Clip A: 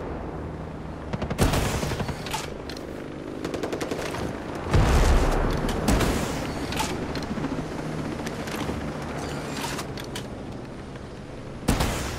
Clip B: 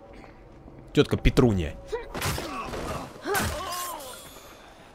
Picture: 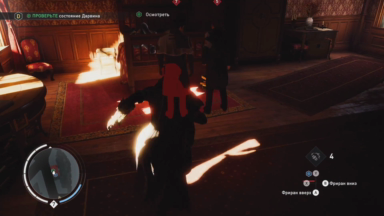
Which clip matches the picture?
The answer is B